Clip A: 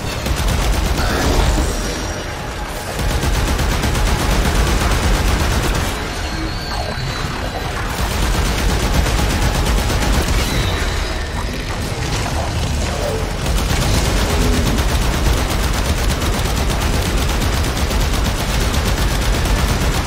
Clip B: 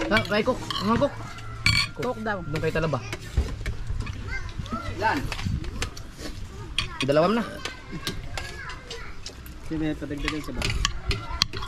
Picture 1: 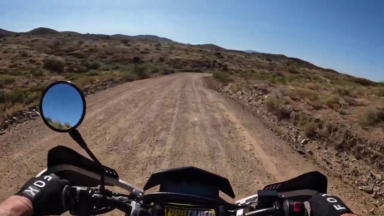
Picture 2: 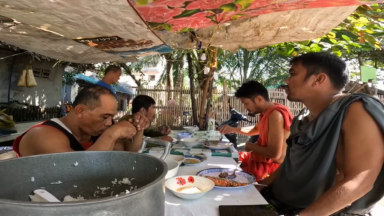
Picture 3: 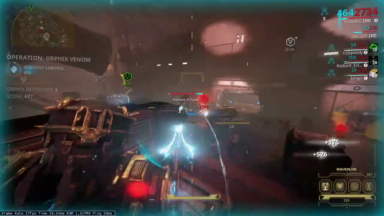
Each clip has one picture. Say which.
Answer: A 3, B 2